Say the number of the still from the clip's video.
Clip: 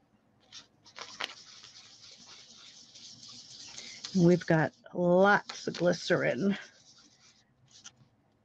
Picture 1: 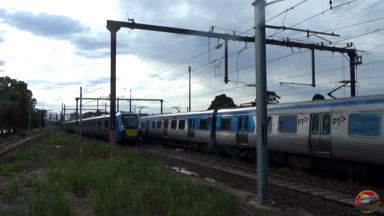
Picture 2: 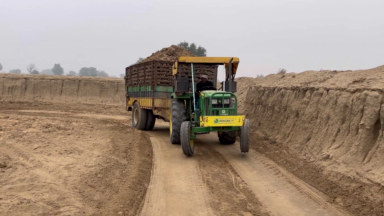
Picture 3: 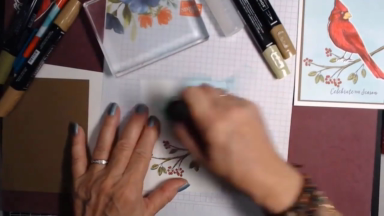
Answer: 3